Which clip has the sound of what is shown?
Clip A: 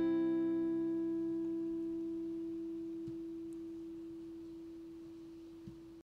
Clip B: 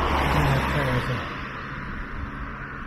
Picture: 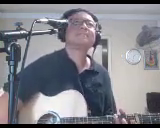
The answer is A